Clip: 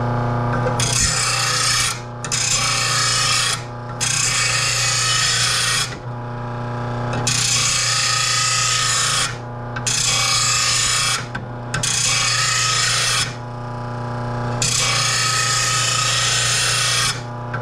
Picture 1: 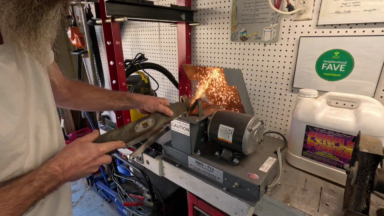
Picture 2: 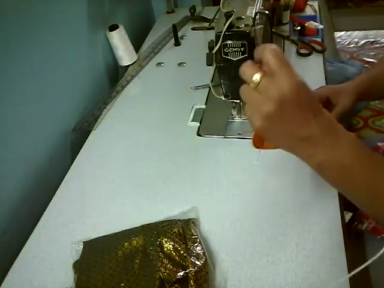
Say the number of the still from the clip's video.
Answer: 1